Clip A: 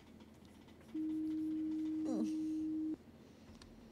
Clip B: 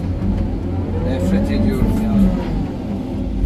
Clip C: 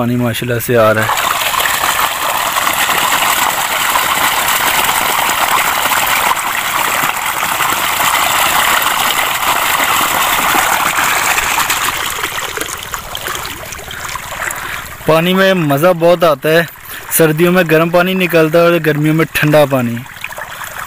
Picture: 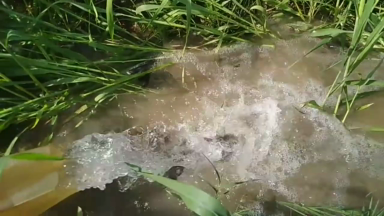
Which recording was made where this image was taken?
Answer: C